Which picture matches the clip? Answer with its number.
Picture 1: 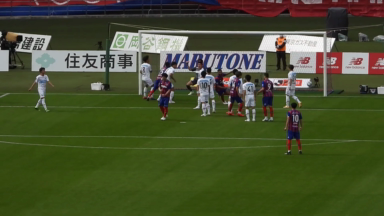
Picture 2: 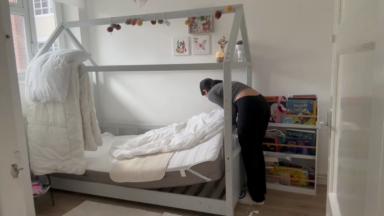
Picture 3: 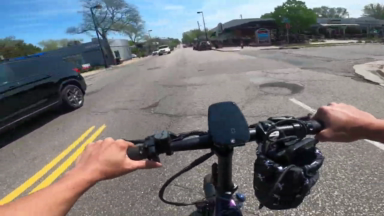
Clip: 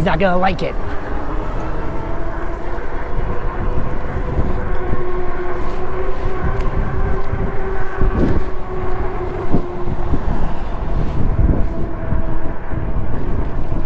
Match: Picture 3